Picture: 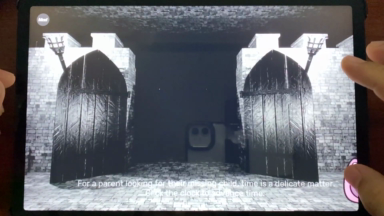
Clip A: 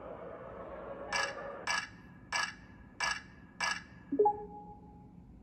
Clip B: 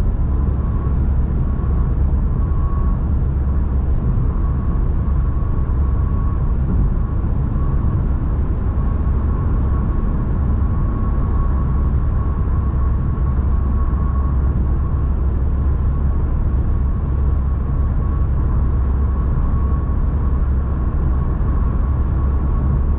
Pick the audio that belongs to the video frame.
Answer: A